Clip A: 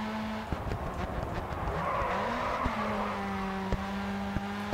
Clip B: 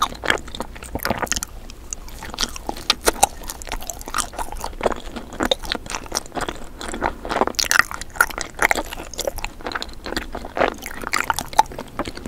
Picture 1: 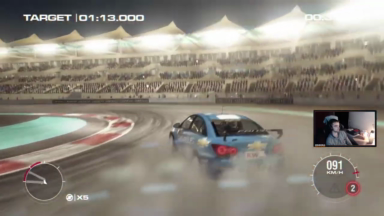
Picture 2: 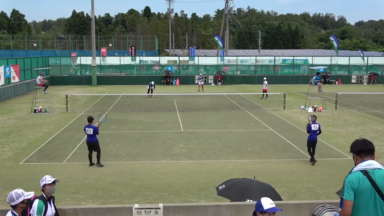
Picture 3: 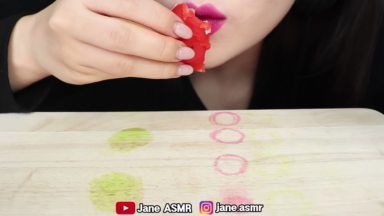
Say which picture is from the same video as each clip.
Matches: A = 1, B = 3